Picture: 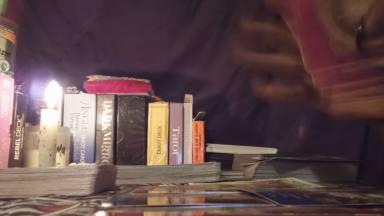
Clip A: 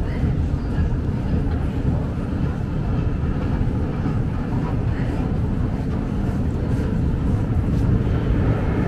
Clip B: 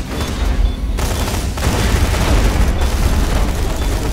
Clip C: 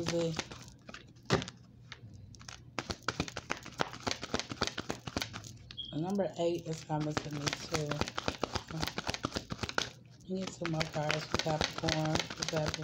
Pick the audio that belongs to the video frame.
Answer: C